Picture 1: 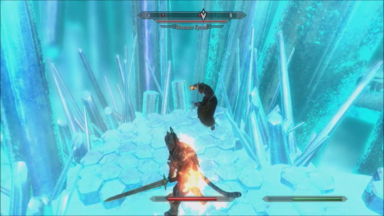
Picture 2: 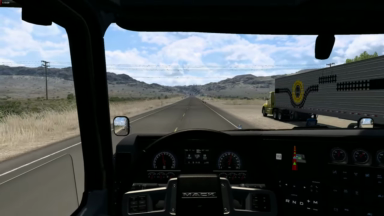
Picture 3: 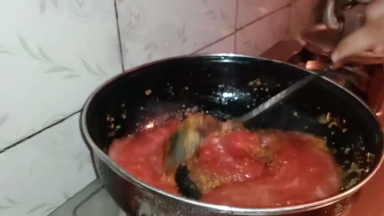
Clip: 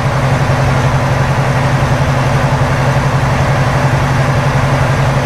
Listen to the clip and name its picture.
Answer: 2